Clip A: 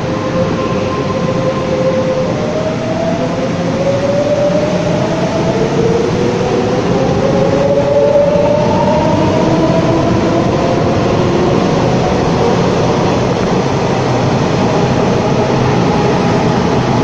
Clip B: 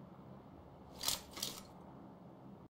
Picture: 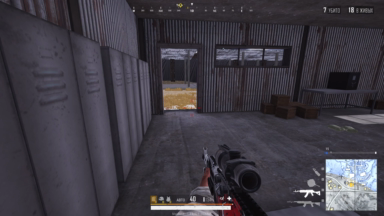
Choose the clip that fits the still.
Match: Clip B